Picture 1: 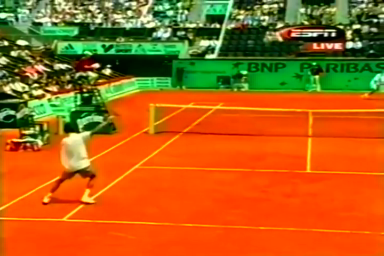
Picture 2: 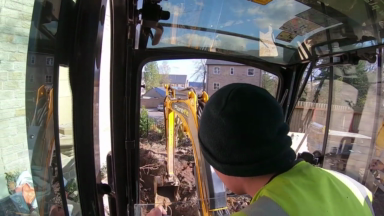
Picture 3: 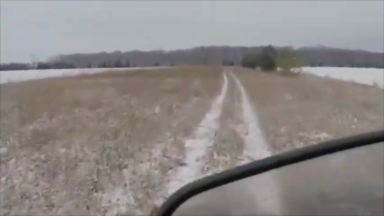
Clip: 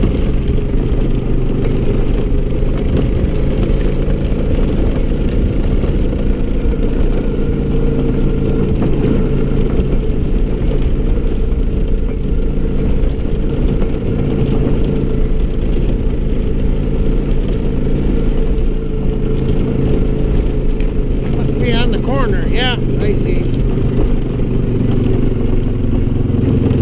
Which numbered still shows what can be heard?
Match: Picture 3